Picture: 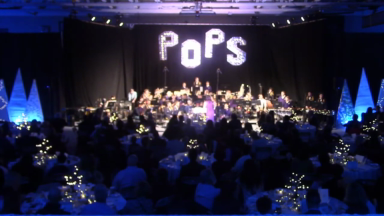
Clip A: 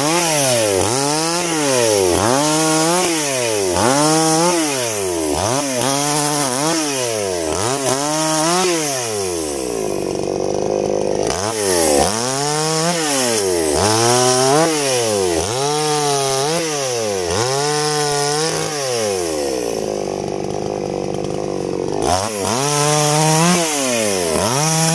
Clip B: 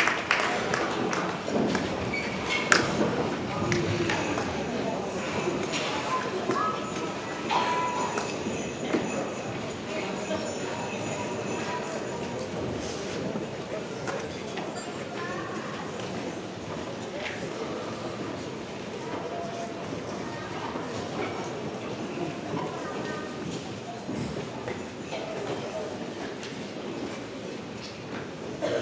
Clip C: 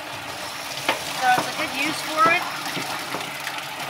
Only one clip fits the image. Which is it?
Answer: B